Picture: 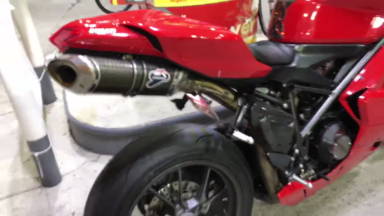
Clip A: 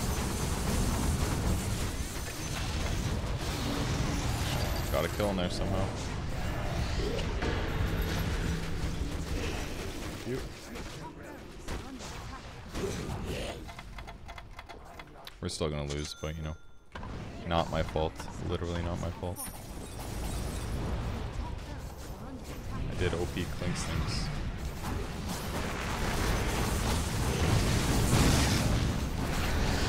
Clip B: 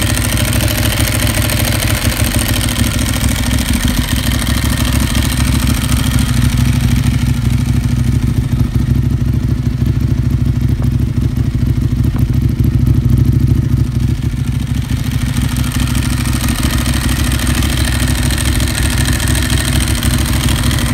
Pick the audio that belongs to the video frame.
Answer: B